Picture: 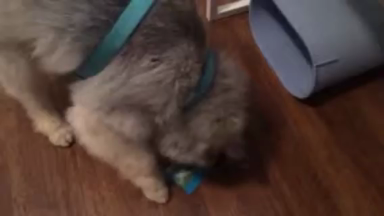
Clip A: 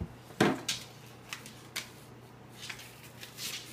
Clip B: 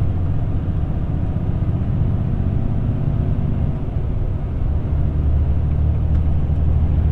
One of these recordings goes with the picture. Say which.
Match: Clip A